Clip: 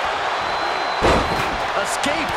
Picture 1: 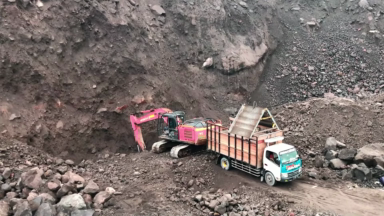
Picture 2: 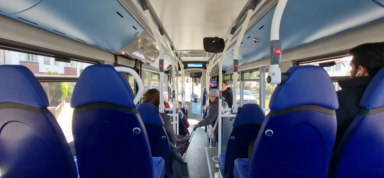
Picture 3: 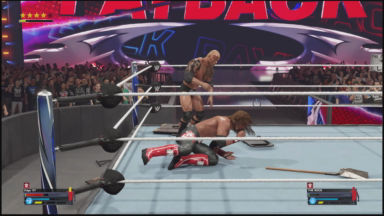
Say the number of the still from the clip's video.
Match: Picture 3